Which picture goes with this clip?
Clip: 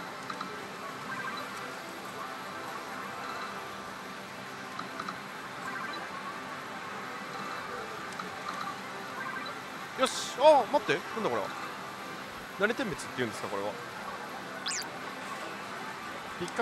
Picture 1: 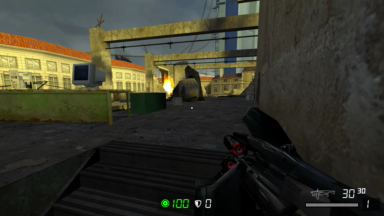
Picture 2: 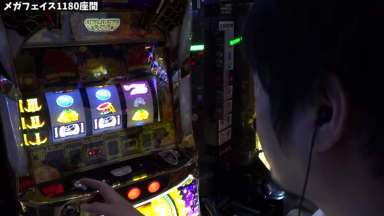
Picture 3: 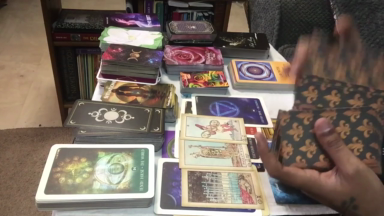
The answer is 2